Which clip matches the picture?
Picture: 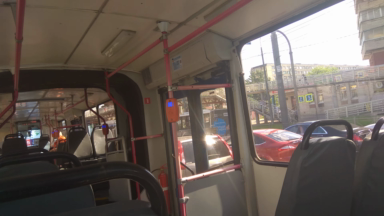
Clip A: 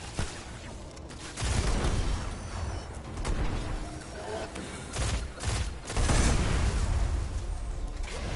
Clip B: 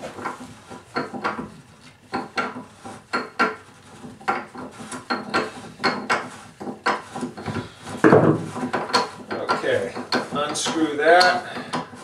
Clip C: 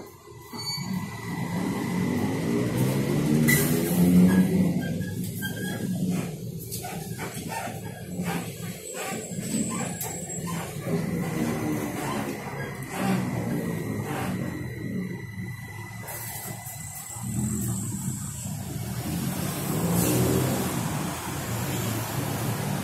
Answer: C